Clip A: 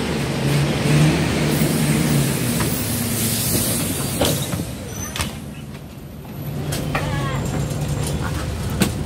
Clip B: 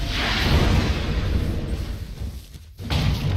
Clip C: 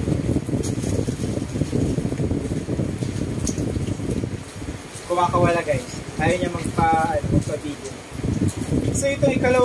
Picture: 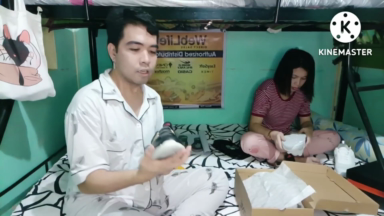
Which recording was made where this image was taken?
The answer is C